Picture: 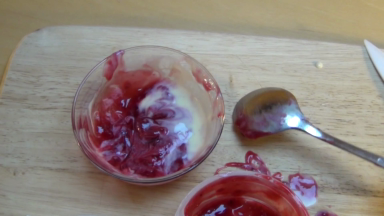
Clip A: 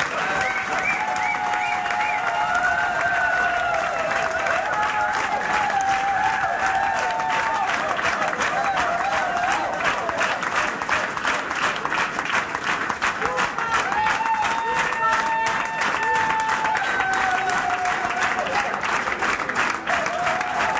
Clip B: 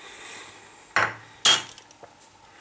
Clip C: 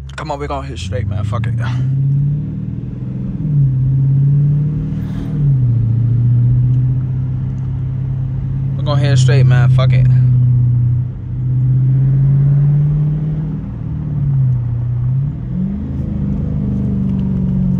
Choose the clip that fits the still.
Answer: B